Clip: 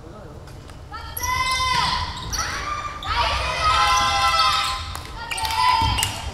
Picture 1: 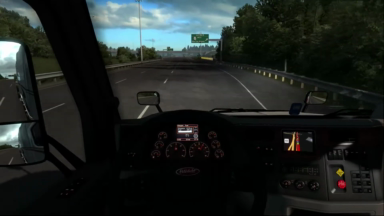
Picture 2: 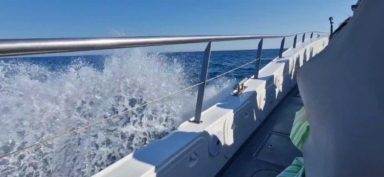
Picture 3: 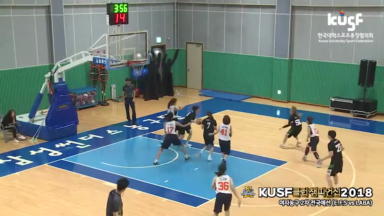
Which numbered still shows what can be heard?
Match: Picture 3